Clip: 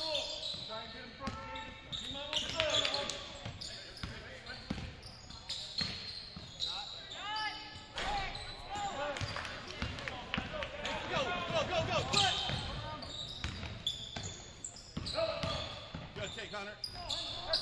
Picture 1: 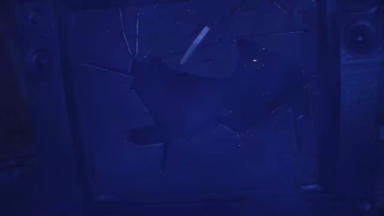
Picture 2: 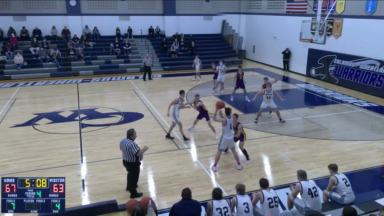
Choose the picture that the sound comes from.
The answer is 2